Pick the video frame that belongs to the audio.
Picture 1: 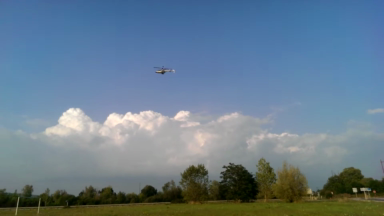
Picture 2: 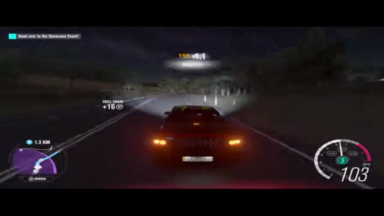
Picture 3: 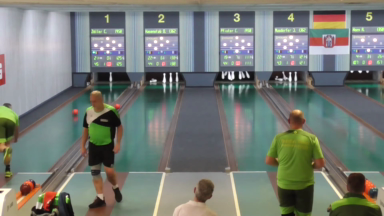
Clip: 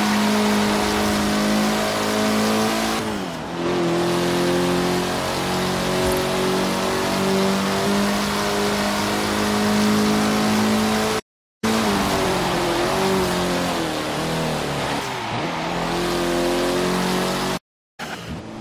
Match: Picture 2